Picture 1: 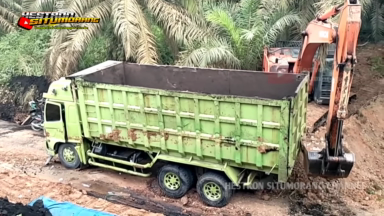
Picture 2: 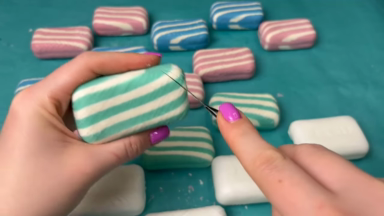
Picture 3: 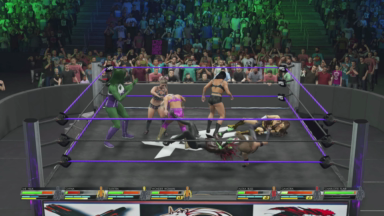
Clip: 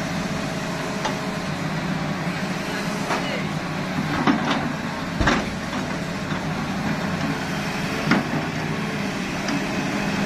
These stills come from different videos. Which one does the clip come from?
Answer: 1